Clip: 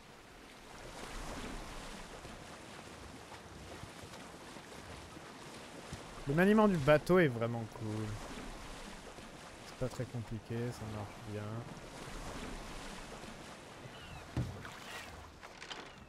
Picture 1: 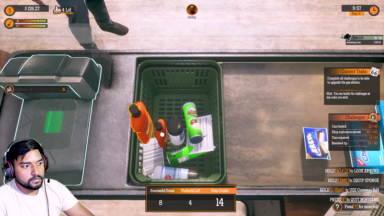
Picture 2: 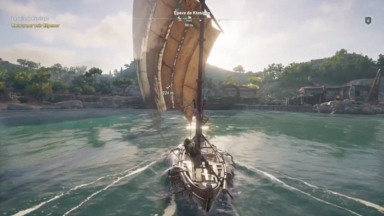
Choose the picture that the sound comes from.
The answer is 2